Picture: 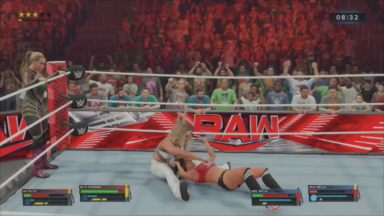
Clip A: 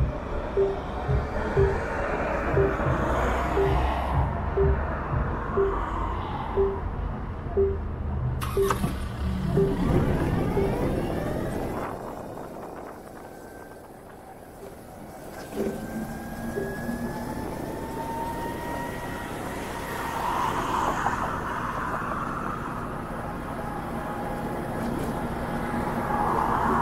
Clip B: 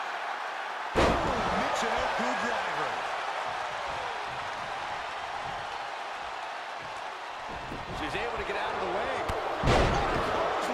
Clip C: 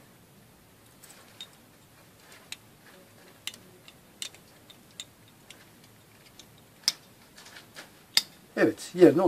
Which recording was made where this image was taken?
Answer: B